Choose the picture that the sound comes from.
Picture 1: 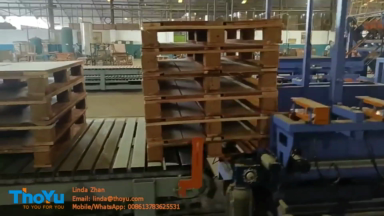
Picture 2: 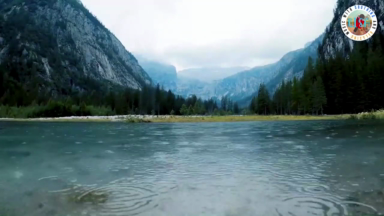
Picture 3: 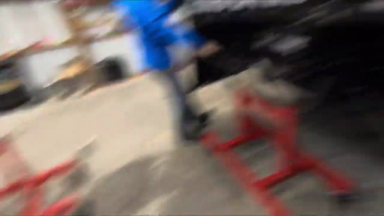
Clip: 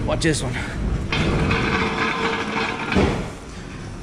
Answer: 3